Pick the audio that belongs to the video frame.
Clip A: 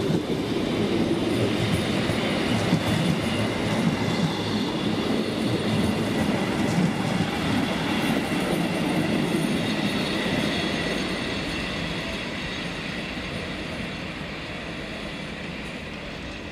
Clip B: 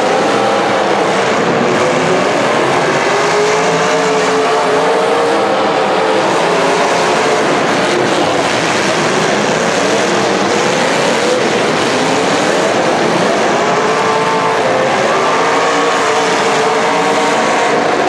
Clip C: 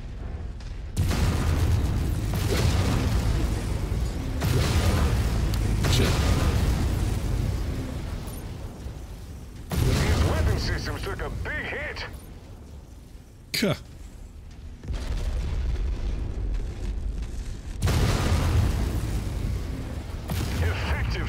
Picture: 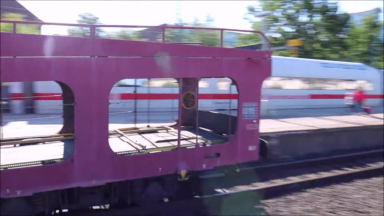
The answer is A